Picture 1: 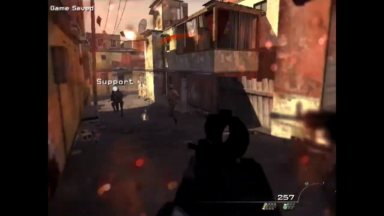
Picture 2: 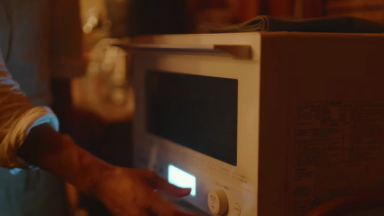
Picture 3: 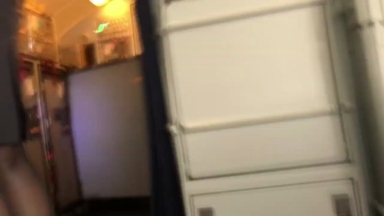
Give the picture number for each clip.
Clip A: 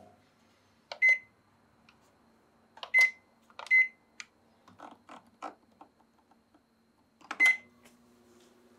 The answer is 2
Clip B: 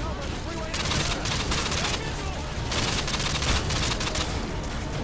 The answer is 1